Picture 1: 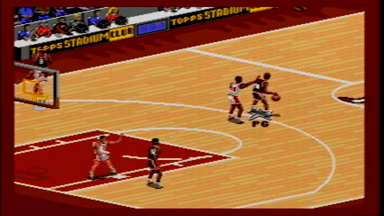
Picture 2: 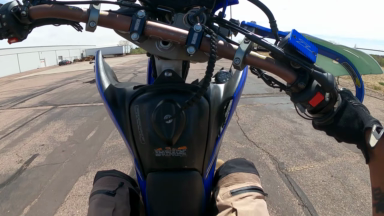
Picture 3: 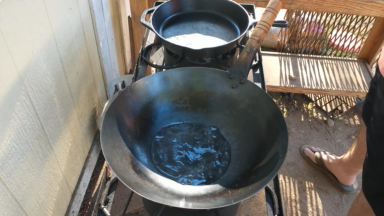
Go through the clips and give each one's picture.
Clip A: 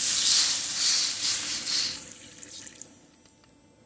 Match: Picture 3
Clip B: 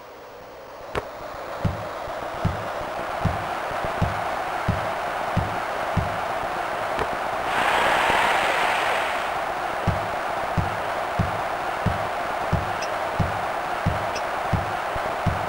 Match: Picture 1